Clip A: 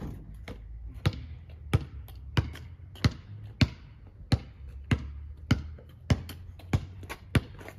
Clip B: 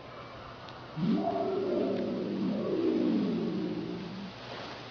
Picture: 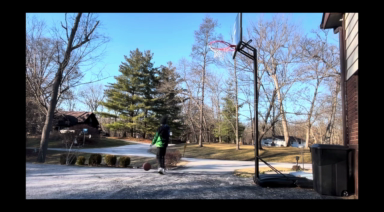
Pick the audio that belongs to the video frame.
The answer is A